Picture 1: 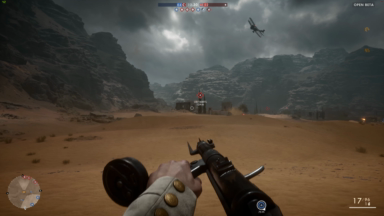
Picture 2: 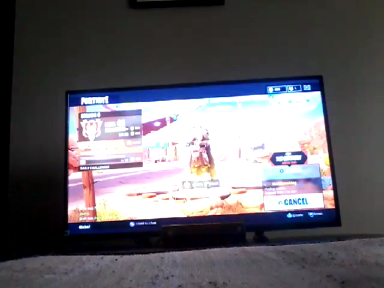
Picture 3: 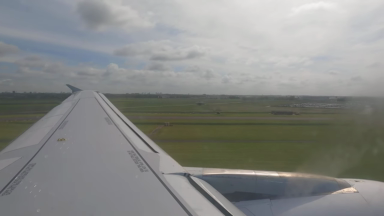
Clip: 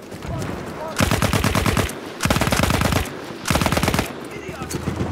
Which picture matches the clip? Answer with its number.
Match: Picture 1